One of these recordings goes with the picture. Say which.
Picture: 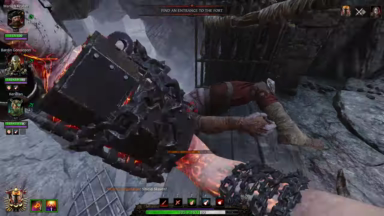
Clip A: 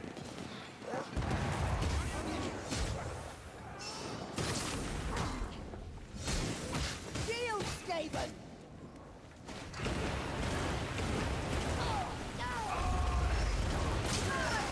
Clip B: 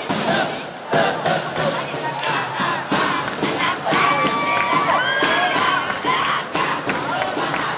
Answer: A